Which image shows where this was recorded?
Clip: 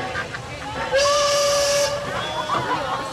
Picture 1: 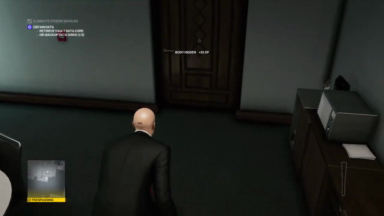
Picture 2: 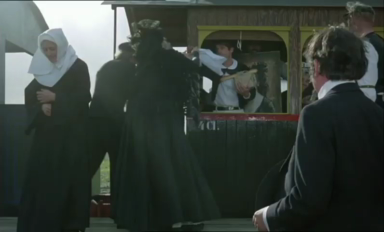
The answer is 2